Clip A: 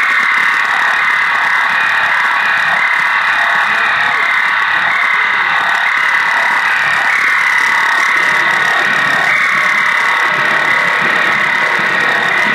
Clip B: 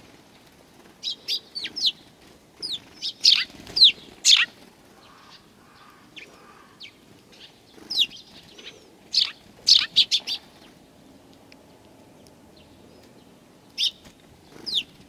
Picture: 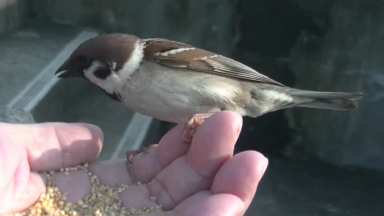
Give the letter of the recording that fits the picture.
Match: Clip B